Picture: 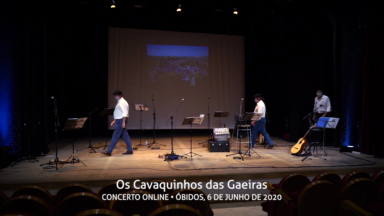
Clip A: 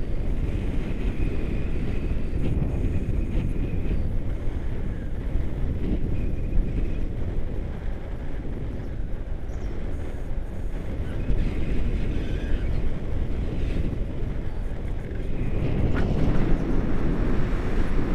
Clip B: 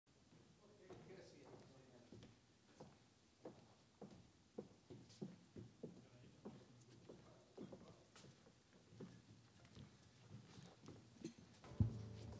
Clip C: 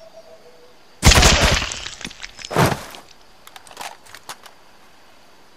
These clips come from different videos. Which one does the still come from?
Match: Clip B